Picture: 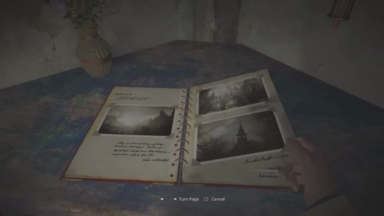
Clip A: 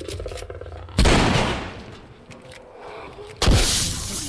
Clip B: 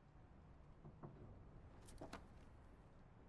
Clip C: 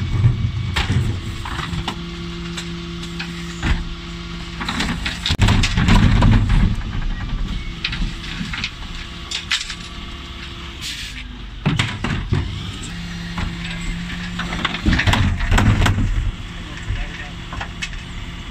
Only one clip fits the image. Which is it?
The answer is B